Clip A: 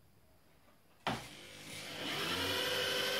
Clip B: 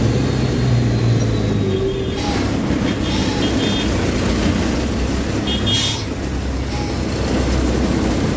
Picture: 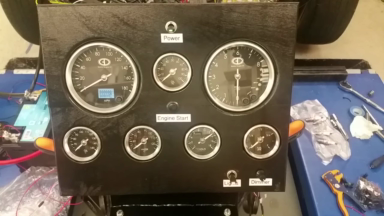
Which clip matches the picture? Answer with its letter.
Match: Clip A